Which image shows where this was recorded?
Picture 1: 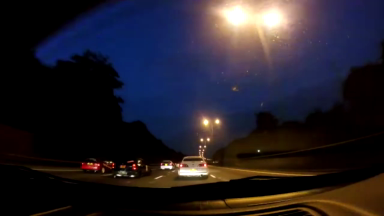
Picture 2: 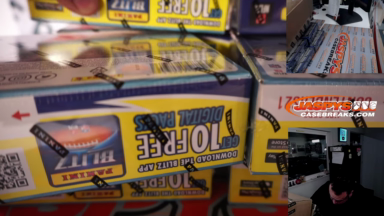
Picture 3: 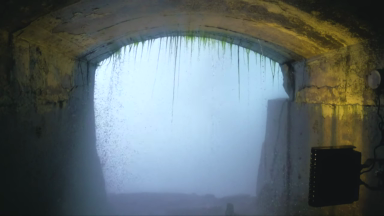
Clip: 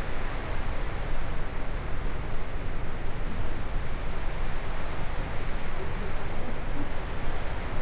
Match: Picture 3